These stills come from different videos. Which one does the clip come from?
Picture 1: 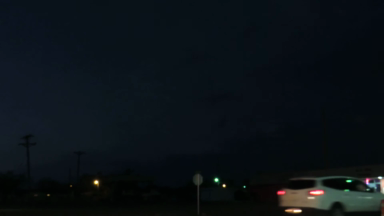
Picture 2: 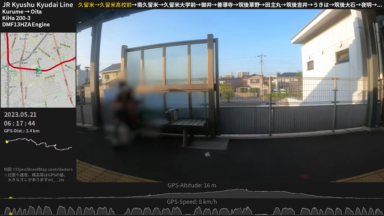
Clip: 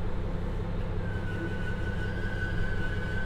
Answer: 2